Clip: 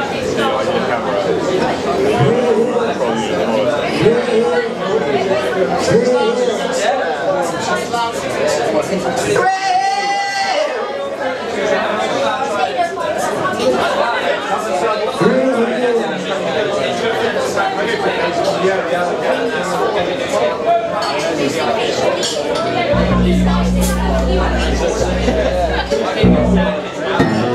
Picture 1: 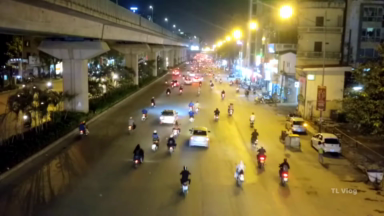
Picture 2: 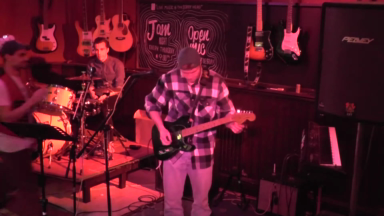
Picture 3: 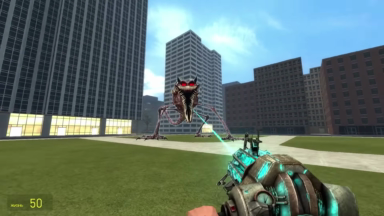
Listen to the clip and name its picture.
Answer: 2